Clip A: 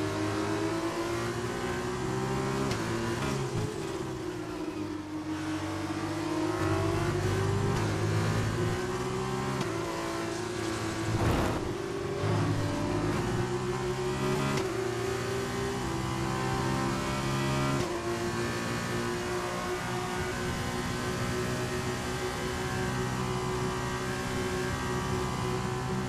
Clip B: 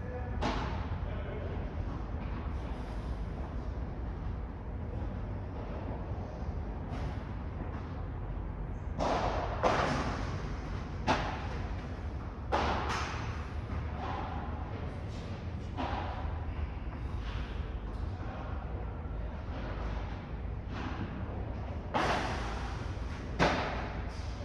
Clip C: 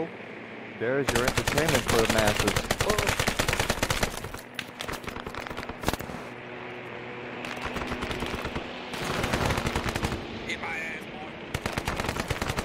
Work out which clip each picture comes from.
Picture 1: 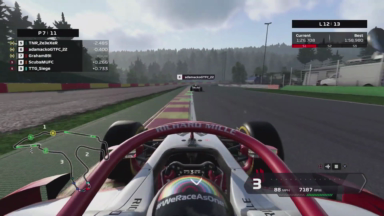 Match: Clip A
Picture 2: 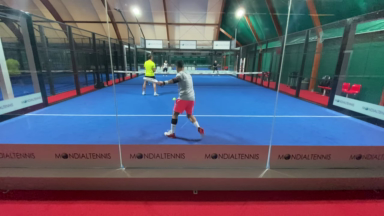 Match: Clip B